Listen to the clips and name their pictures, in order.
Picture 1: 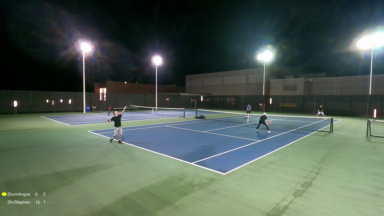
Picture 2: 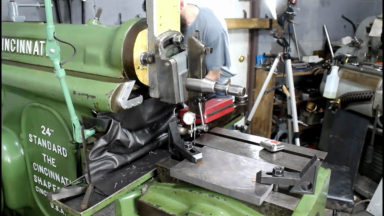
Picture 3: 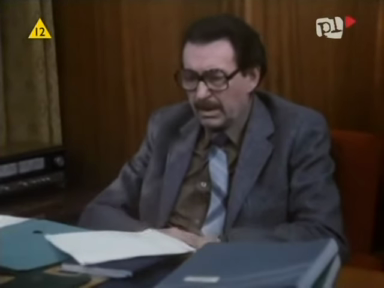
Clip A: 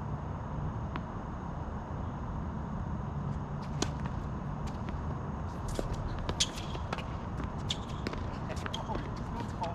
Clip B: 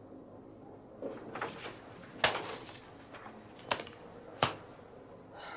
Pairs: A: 1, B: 3